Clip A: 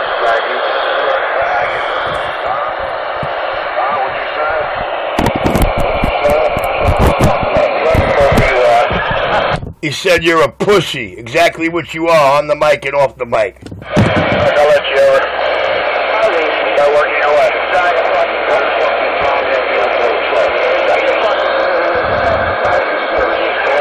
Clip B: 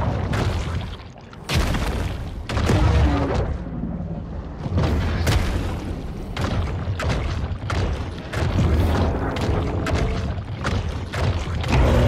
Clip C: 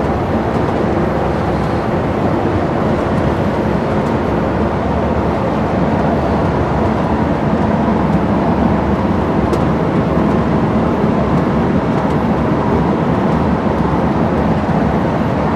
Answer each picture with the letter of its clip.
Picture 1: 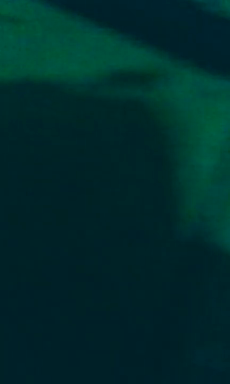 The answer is A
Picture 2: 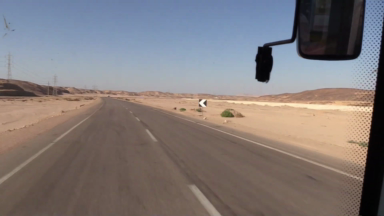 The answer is C